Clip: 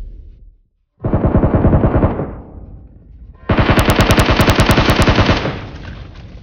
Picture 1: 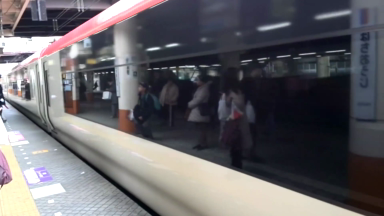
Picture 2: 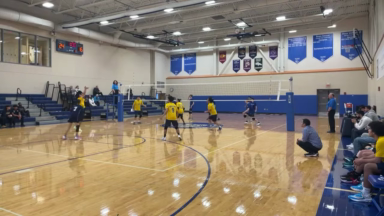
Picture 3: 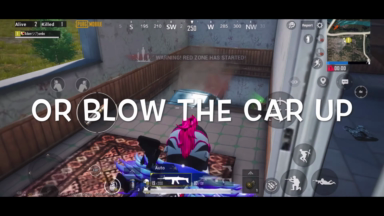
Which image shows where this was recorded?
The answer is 3